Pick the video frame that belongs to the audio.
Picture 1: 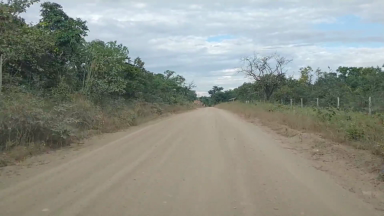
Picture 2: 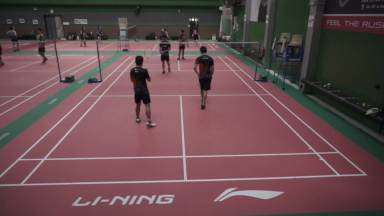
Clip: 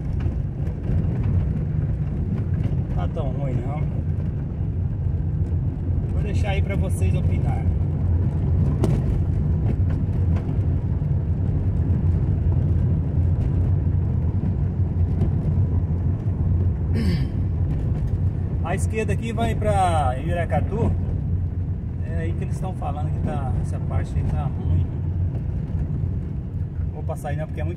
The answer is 1